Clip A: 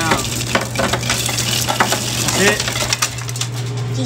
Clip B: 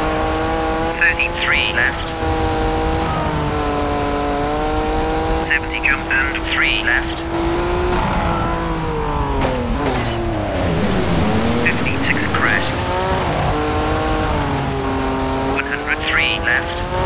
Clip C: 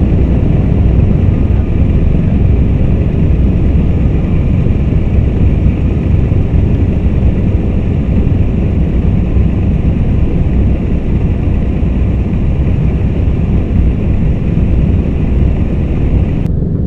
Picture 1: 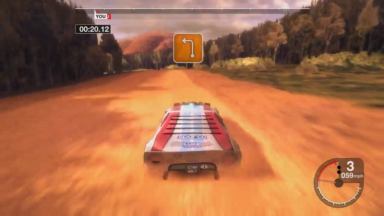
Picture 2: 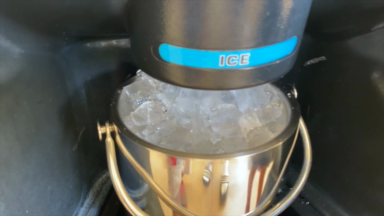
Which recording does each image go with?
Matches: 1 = B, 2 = A